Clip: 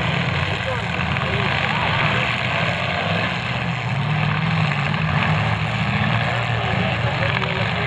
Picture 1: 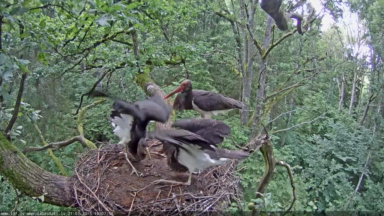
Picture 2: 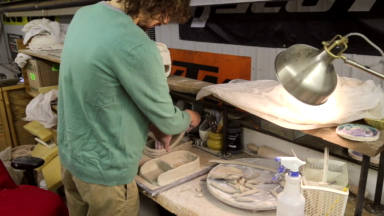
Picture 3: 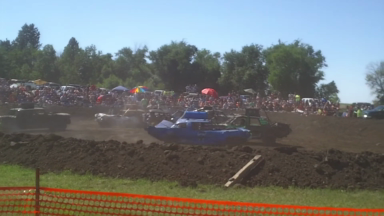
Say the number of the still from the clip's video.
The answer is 3